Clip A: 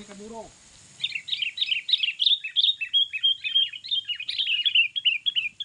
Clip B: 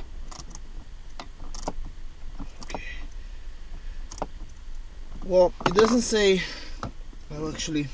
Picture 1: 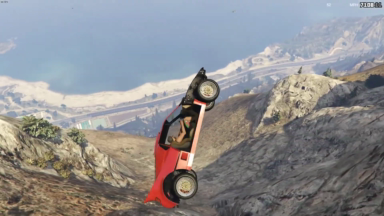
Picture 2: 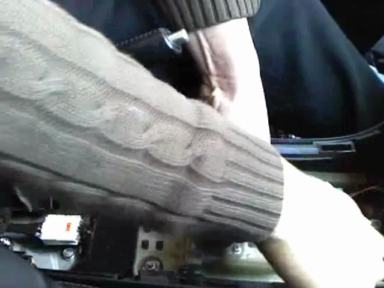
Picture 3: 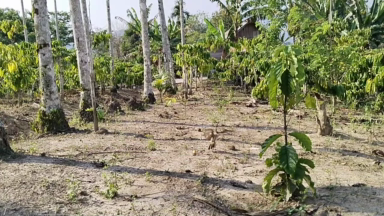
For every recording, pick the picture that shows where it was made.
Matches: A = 3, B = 2